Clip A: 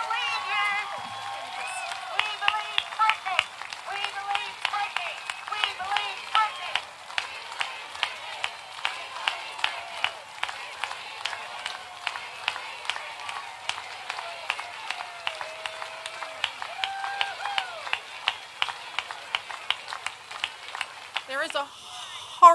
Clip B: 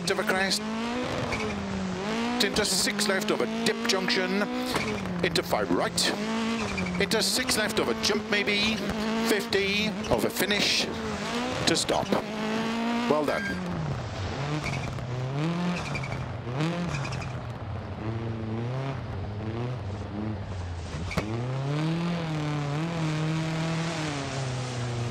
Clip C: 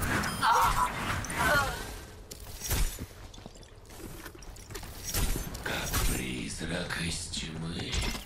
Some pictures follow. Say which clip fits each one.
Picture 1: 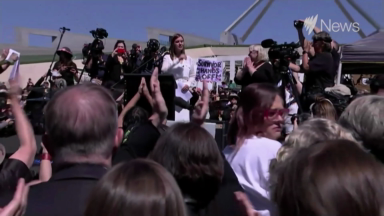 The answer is A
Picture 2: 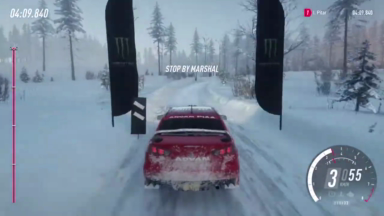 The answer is B